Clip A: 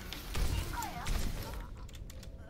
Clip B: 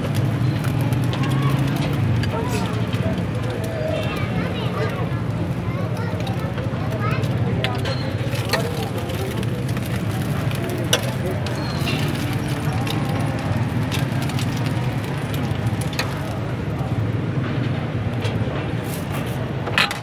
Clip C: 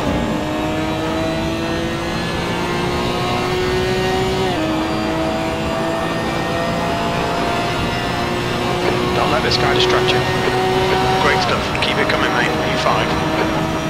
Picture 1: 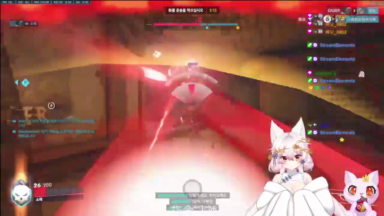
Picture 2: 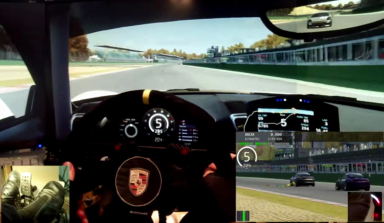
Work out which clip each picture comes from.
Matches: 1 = A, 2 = C